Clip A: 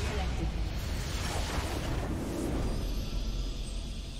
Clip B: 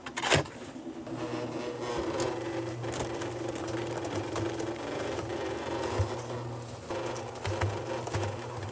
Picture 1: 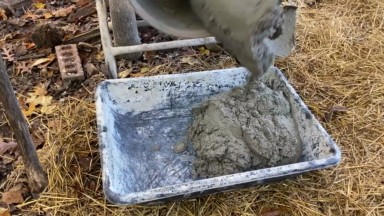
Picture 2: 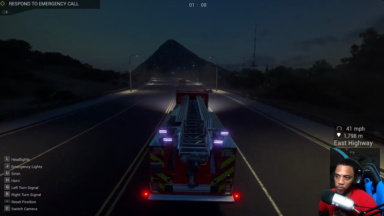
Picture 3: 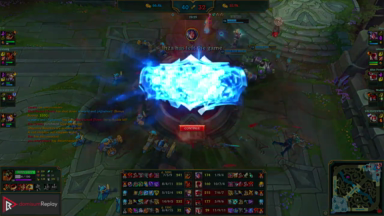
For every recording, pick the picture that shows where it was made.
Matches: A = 3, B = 1